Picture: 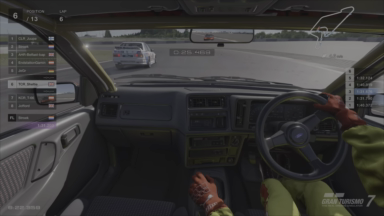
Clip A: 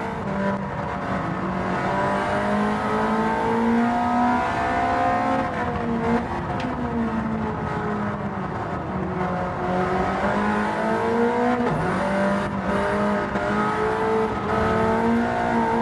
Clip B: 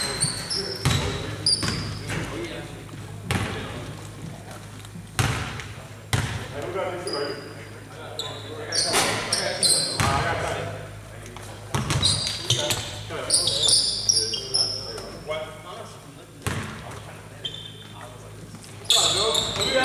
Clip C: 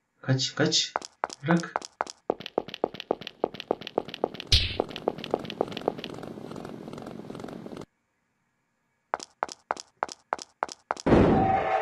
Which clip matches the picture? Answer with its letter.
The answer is A